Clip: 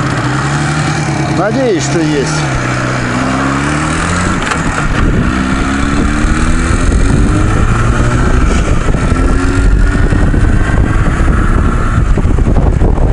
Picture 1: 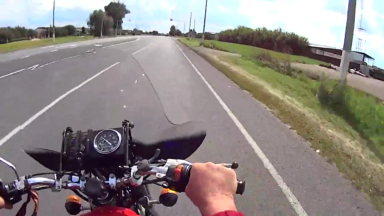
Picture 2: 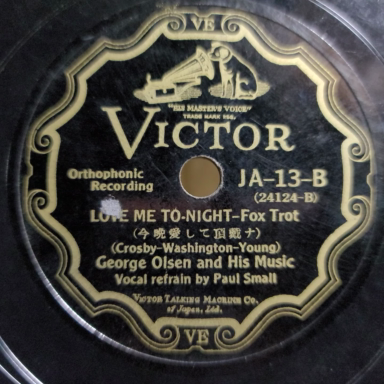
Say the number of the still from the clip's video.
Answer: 1